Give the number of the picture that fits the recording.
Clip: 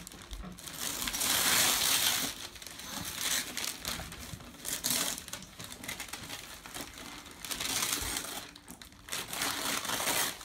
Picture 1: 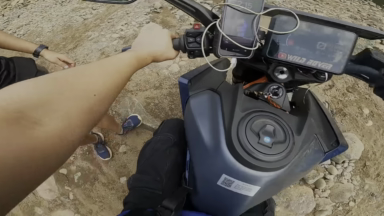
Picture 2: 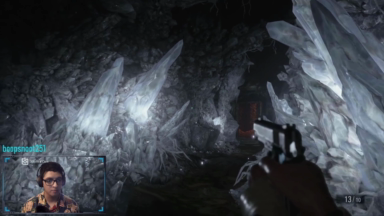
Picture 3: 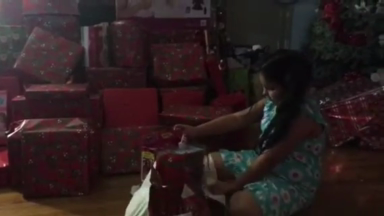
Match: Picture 3